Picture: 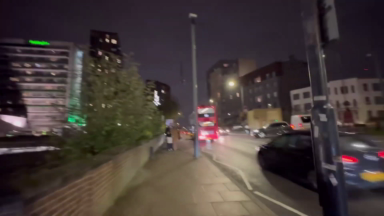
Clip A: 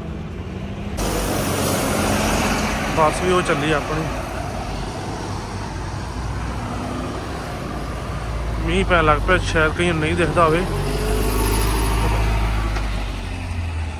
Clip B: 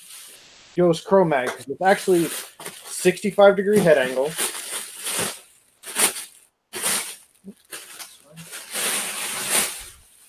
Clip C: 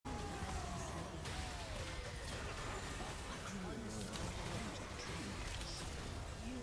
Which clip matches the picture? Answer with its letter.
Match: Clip A